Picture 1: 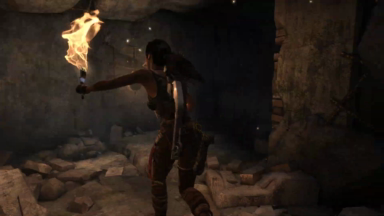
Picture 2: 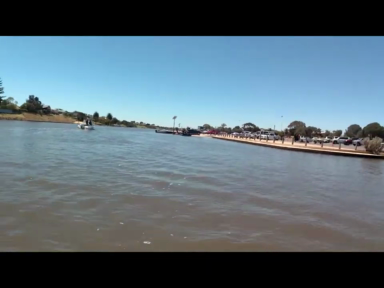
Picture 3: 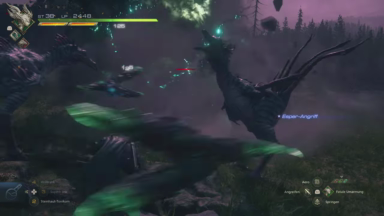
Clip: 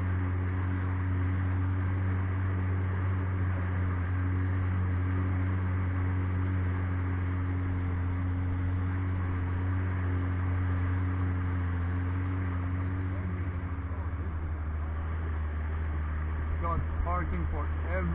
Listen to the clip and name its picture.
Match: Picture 2